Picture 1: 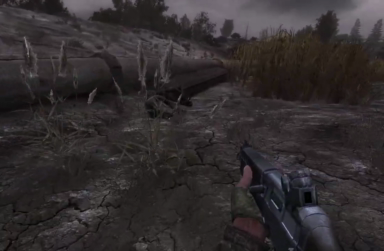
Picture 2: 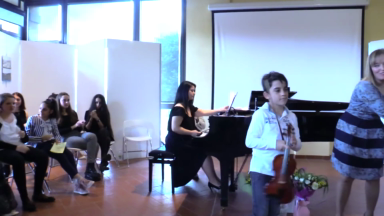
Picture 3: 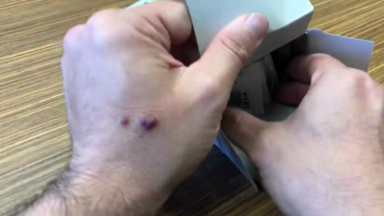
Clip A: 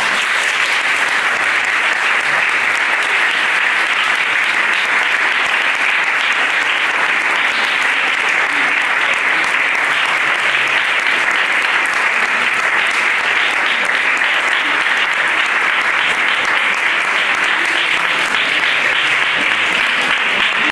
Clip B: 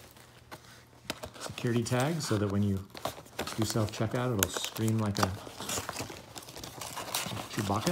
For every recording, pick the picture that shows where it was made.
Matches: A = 2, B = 3